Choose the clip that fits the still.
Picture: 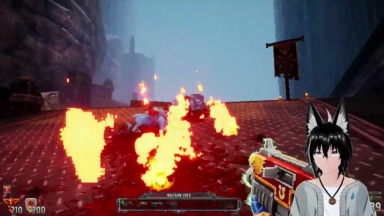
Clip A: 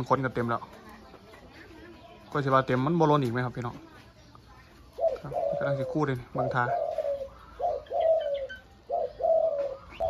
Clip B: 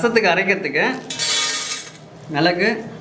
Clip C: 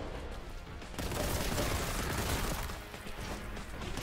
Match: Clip C